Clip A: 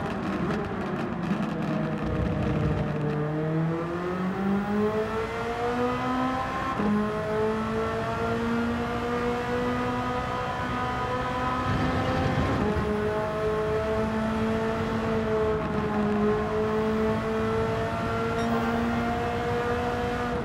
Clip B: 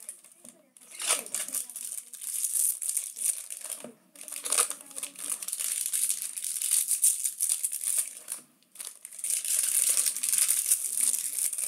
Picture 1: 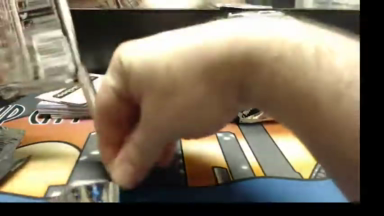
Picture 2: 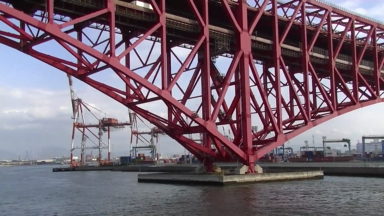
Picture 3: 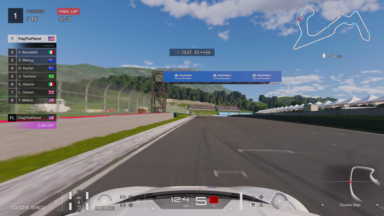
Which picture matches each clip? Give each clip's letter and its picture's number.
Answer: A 3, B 1